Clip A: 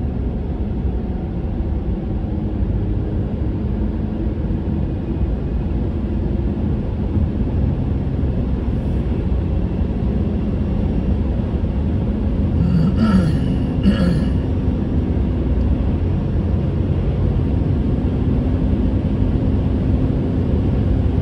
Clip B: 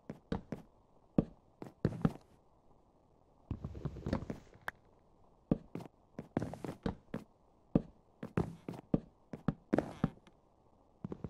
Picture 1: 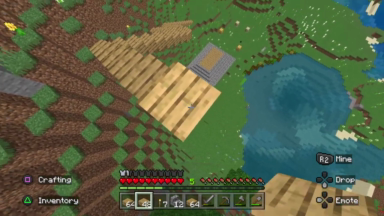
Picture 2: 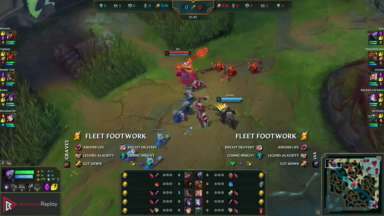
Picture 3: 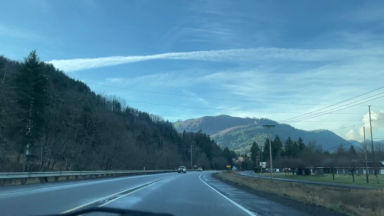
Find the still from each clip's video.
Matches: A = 3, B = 1